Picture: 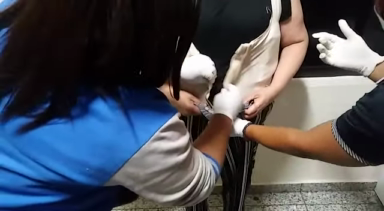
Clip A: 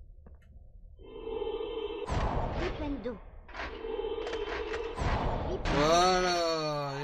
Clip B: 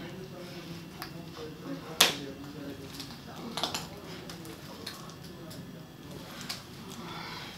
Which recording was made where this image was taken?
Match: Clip B